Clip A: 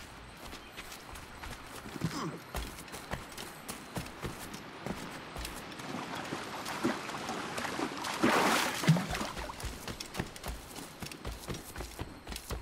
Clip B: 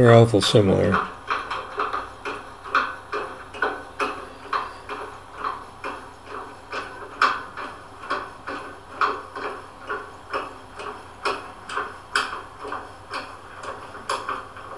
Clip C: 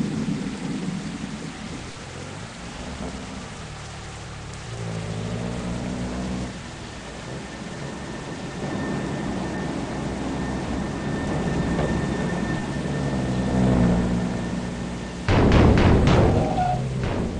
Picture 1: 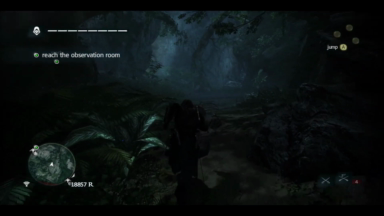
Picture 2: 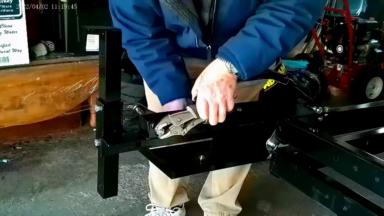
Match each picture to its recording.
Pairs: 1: A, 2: B